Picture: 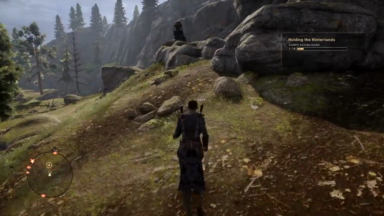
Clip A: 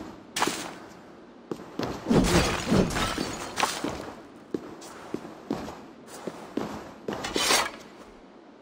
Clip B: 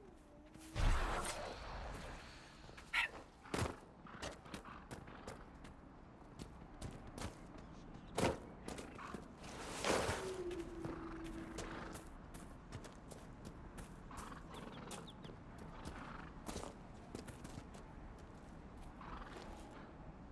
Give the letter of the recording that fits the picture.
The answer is B